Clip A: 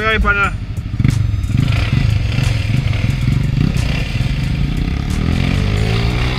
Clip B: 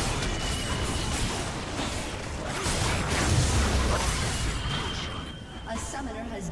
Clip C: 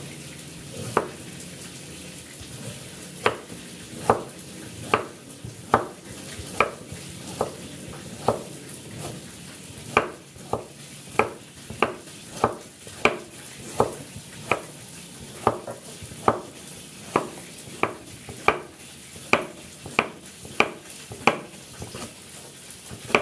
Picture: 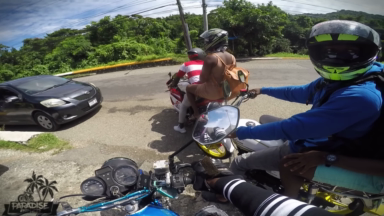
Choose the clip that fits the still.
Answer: A